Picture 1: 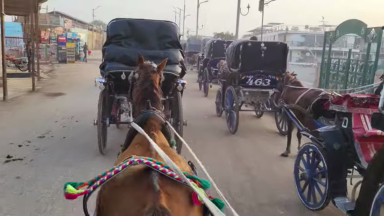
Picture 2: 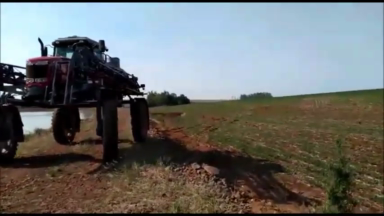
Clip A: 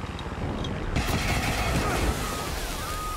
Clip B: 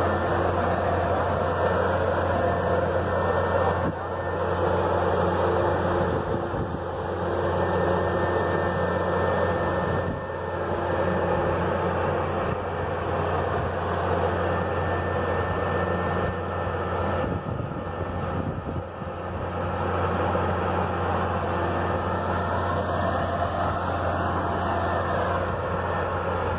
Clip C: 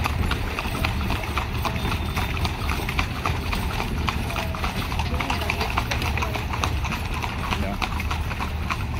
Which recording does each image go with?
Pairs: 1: C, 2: B